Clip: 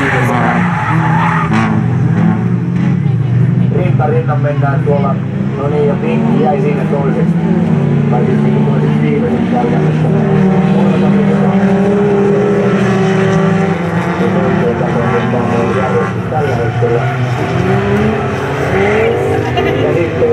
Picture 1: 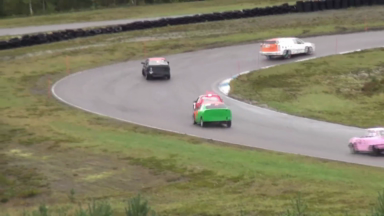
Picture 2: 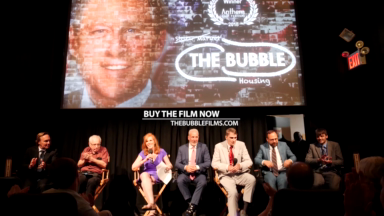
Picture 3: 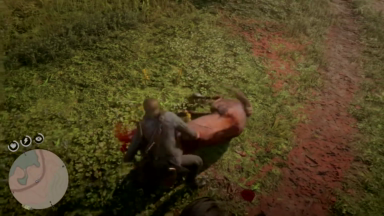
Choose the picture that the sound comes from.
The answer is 1